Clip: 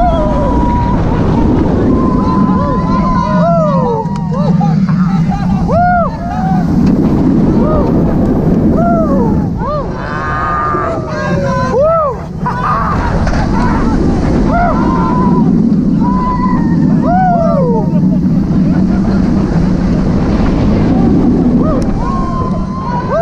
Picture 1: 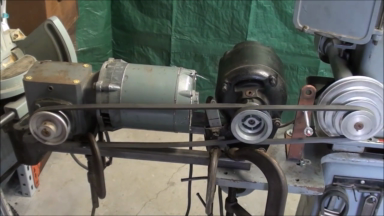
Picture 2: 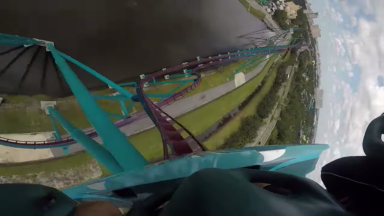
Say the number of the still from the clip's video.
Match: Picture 2